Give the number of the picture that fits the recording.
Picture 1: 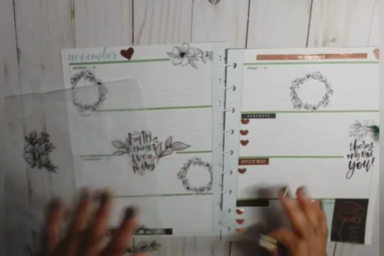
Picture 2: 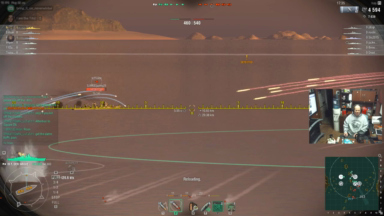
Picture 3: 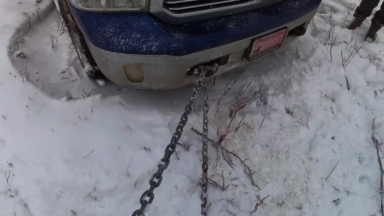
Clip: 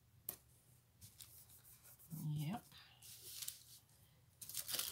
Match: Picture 1